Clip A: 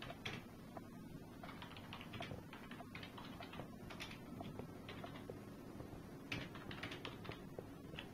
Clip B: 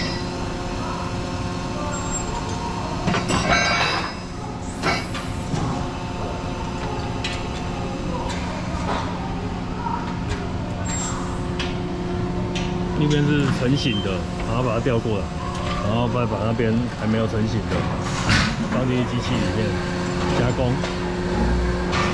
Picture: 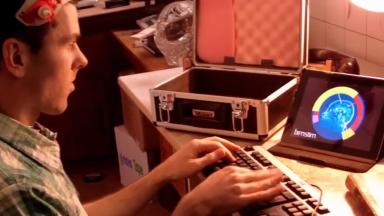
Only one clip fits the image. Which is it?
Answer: A